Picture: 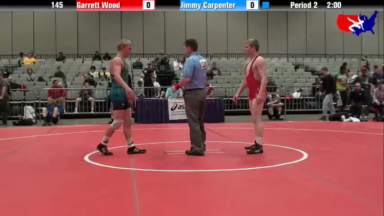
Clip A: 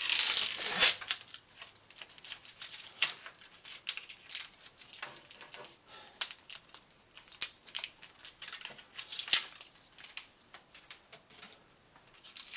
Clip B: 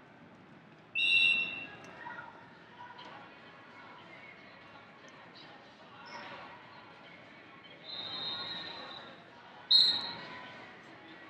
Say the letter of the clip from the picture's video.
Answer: B